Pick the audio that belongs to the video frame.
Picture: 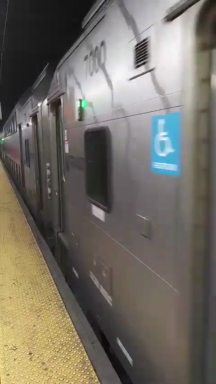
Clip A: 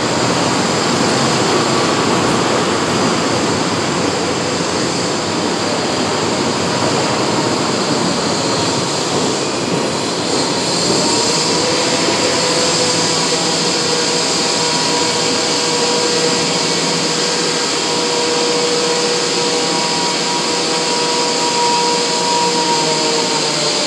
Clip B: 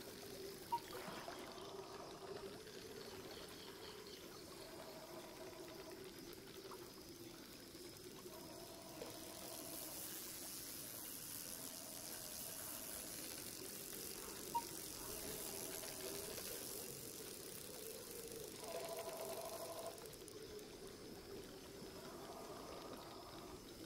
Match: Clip A